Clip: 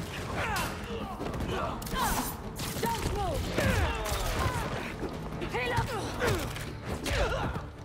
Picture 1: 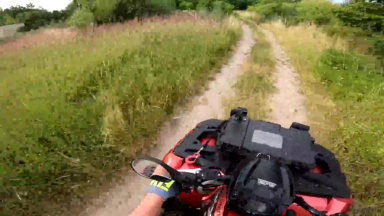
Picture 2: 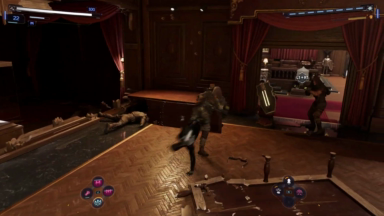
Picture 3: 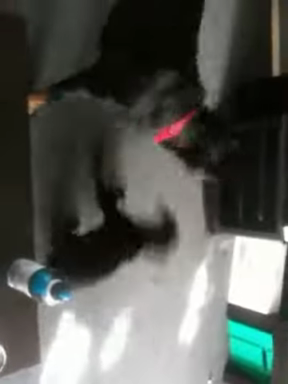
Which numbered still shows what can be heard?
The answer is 2